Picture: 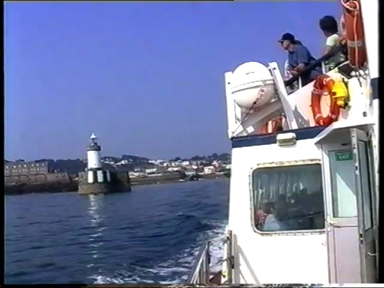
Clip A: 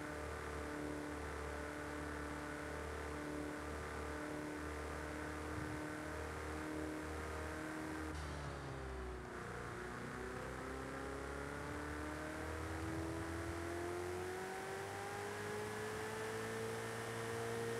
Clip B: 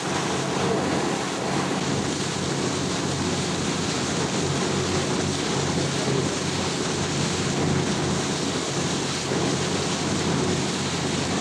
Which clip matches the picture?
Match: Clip B